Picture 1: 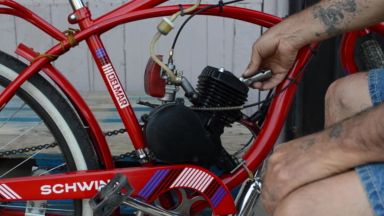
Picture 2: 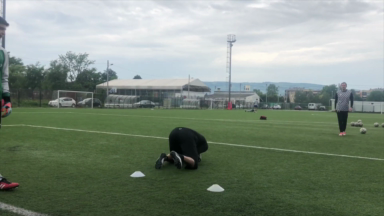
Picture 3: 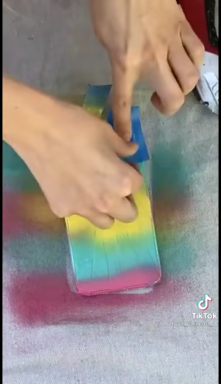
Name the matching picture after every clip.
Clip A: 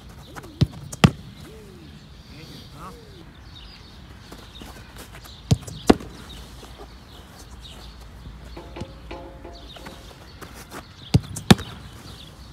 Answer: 2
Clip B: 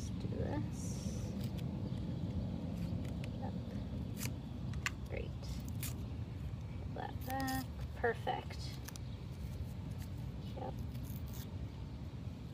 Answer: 3